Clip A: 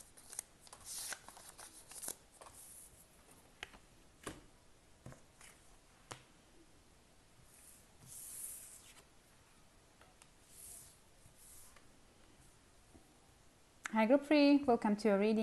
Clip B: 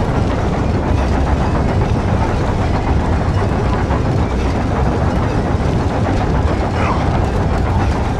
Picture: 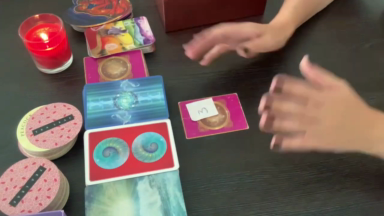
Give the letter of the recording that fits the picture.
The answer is A